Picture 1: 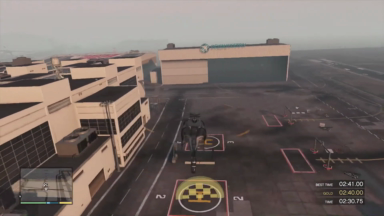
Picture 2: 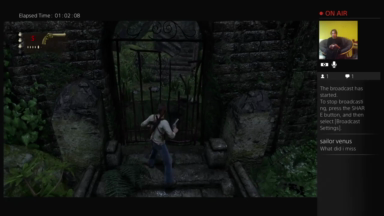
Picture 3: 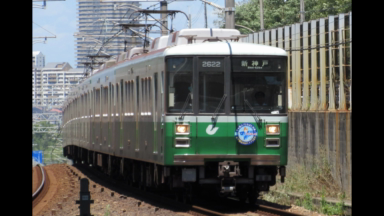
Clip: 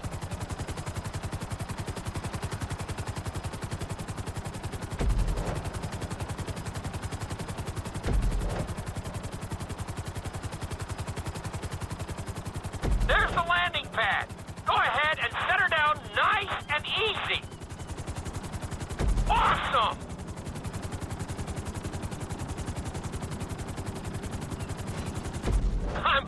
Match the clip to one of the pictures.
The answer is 1